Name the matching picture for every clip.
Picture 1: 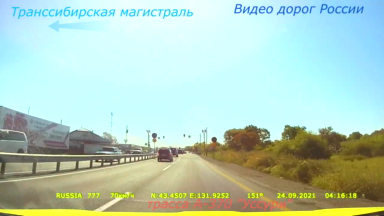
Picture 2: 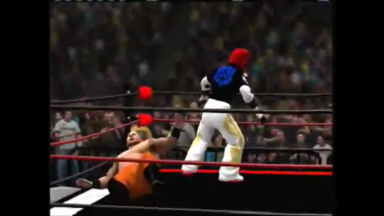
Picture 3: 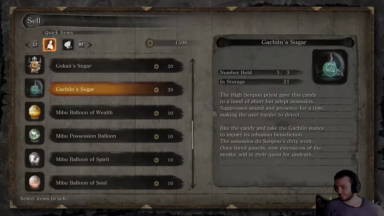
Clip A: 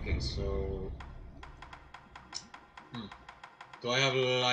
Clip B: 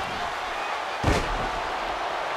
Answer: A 3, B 2